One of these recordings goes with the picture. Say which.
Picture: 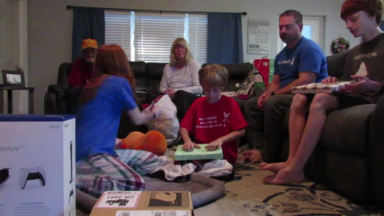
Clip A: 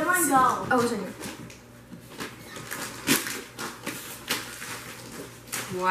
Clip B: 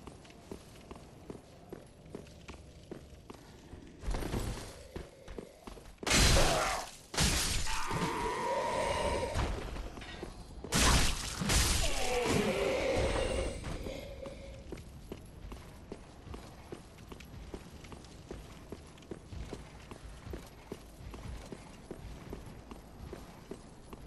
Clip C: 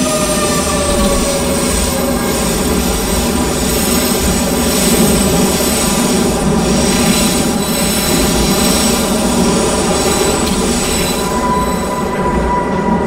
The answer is A